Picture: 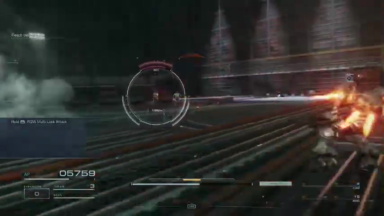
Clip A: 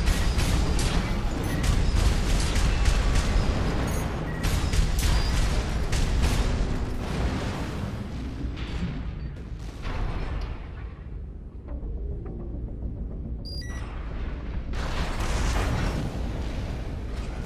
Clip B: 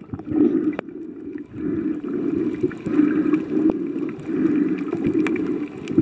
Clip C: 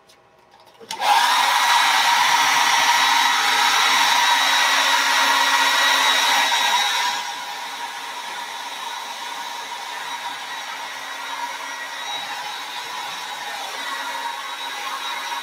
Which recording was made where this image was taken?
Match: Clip A